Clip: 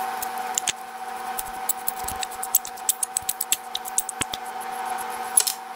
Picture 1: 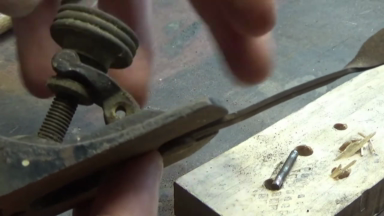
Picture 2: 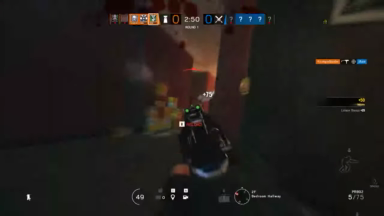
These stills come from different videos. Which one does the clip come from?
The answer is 1